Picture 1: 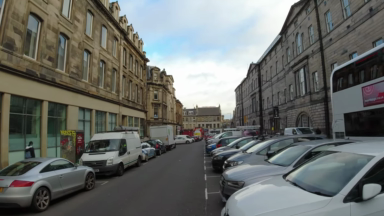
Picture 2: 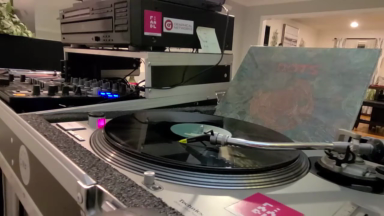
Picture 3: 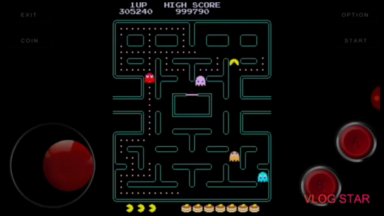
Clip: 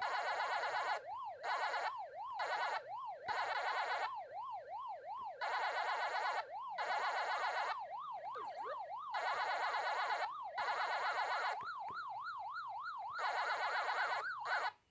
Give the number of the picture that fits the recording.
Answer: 3